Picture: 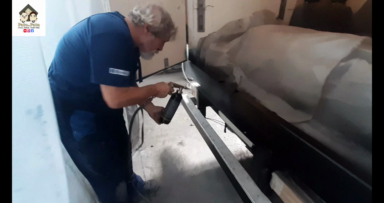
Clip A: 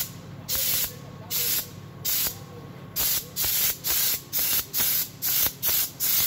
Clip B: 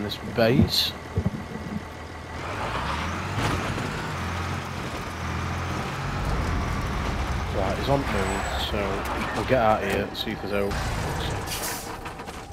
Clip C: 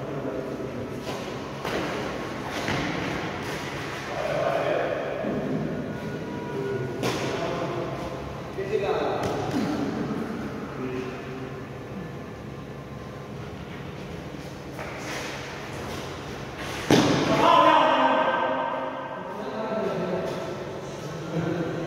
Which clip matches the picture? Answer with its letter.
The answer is A